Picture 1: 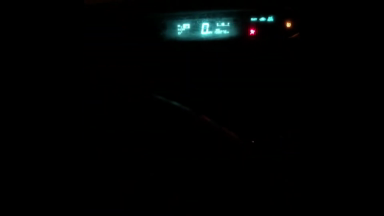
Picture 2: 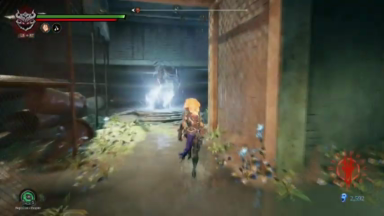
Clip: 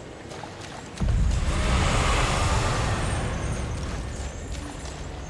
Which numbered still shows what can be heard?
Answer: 2